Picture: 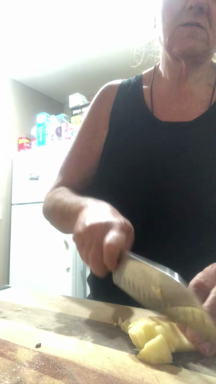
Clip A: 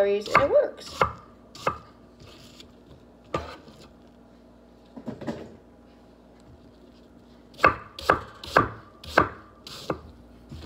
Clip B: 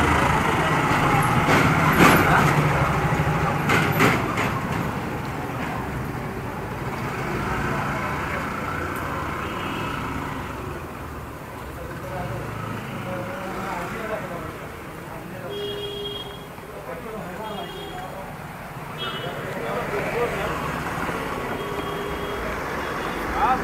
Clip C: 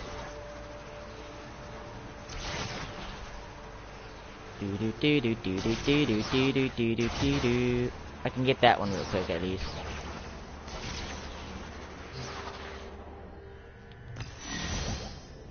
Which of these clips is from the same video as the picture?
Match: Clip A